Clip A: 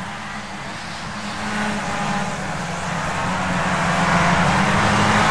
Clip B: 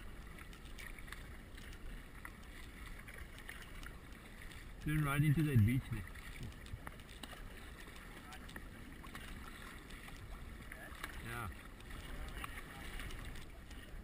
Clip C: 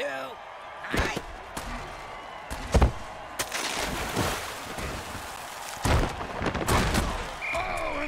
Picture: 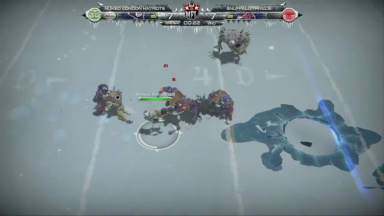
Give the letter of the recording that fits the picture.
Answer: C